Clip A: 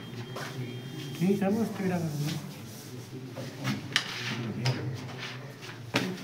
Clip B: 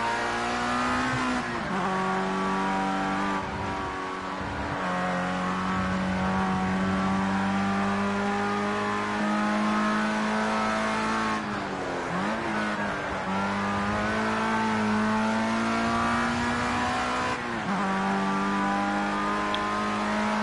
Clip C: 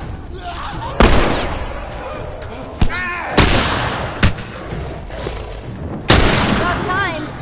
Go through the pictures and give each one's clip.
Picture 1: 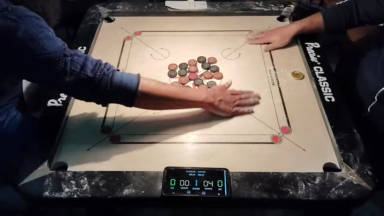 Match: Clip A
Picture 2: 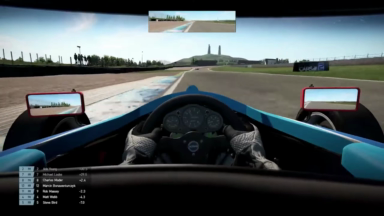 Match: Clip B